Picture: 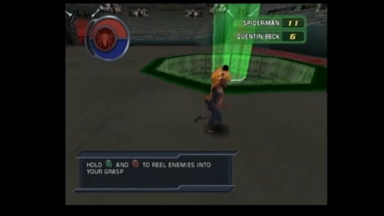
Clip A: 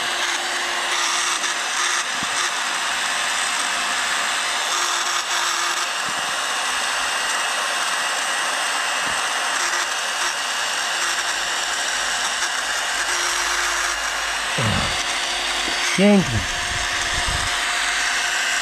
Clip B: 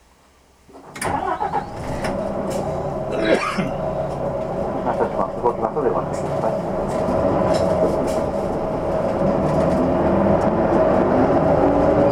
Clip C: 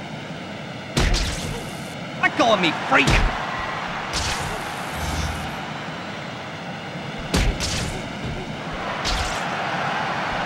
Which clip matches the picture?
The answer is C